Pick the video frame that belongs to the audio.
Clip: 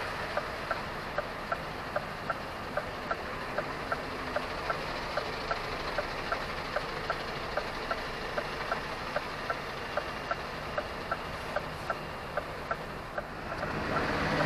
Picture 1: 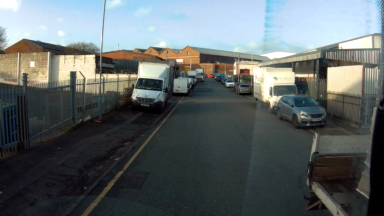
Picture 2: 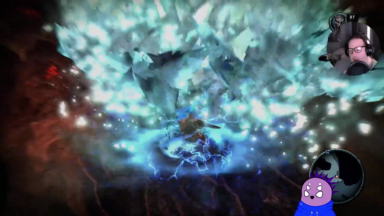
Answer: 1